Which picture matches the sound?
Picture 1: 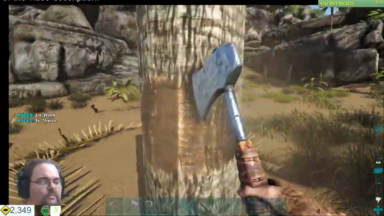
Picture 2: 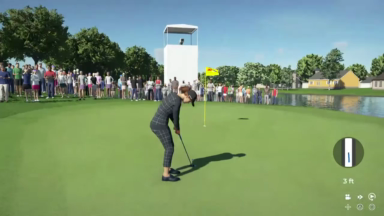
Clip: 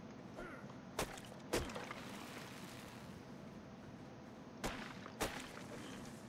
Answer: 1